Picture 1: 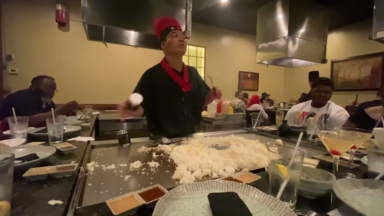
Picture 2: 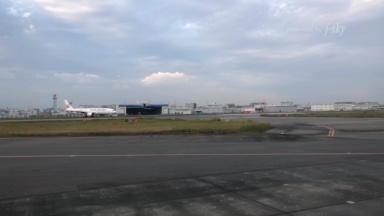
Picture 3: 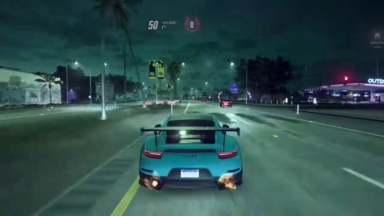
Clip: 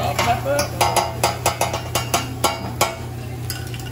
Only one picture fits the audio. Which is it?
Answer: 1